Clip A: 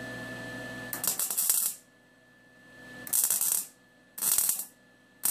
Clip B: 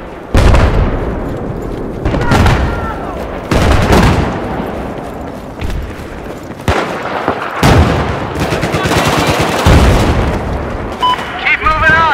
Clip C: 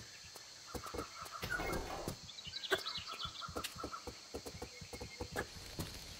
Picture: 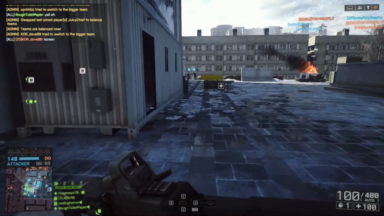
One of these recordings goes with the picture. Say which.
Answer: B